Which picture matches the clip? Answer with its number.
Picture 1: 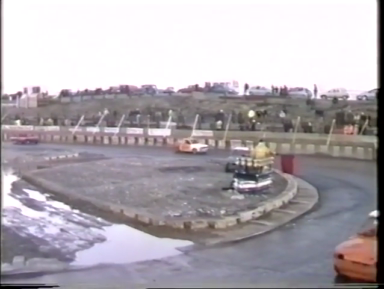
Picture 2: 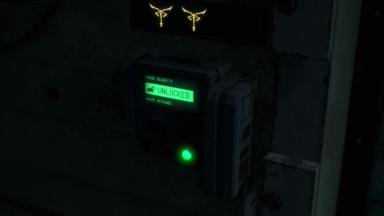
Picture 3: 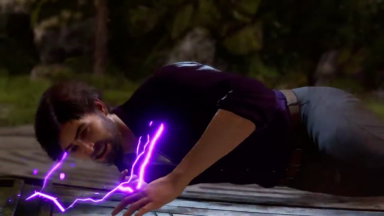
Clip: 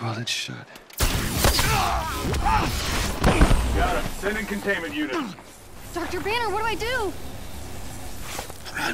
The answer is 3